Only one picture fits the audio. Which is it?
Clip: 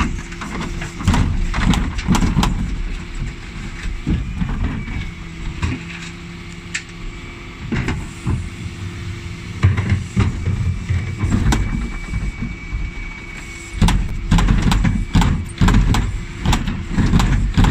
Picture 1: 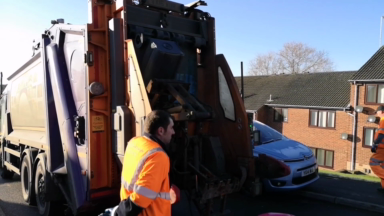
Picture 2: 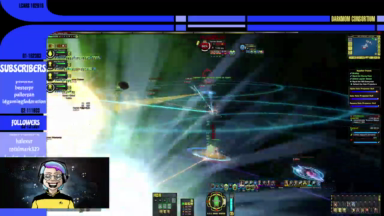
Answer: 1